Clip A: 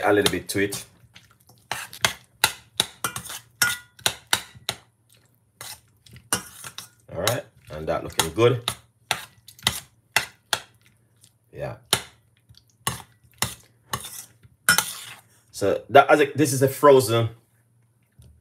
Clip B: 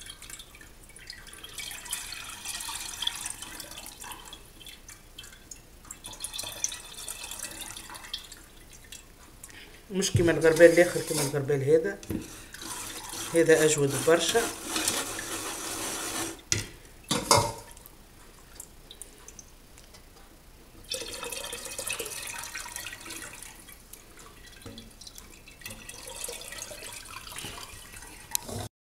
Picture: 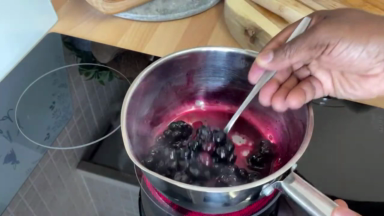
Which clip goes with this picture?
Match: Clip A